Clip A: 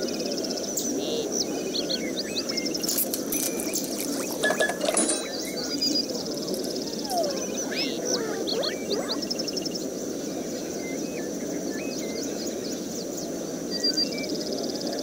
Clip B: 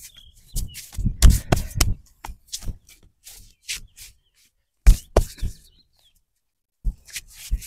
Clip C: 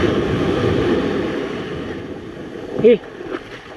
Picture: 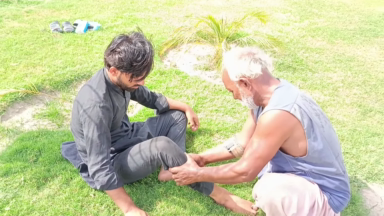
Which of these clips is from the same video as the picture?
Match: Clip B